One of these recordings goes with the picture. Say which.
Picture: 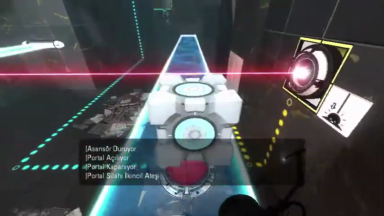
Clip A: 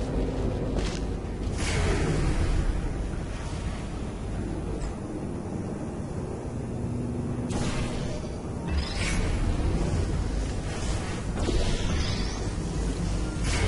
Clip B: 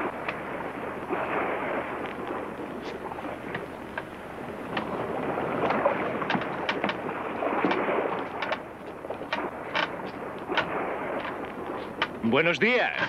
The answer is A